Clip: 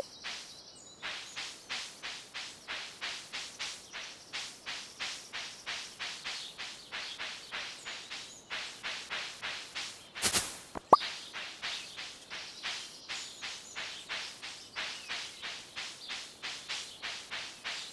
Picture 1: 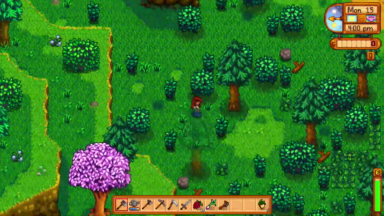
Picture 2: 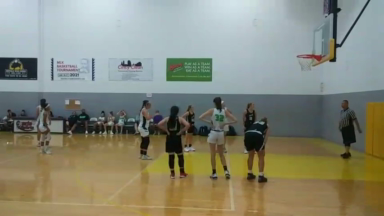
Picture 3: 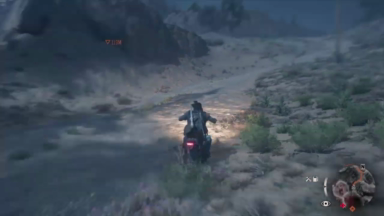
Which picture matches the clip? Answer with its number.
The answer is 1